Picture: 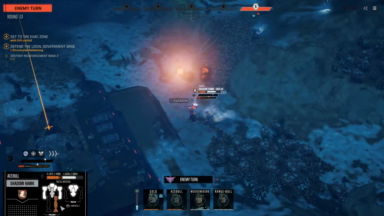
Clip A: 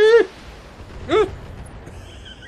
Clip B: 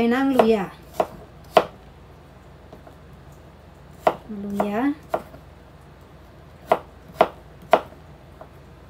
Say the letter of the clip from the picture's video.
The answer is A